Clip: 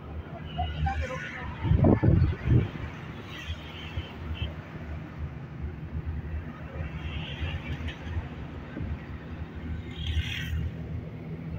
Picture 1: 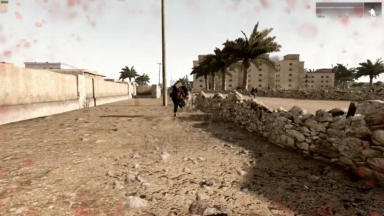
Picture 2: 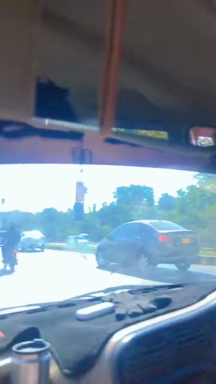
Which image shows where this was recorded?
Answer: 2